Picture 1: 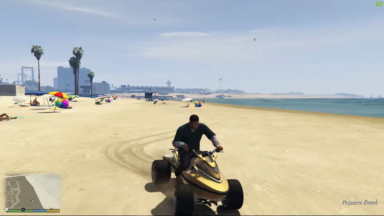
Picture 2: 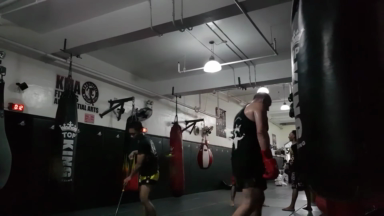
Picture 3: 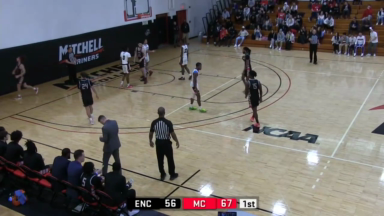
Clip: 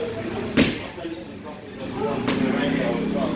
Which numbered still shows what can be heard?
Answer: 2